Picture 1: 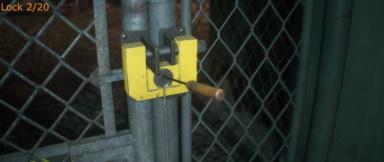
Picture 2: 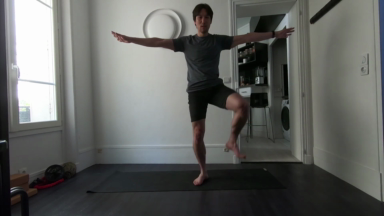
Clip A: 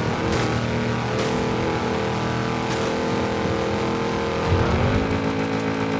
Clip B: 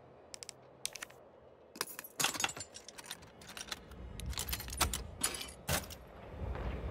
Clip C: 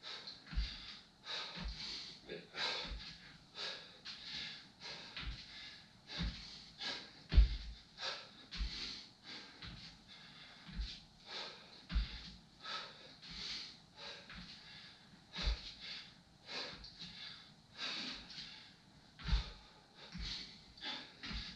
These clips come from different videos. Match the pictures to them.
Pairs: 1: B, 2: C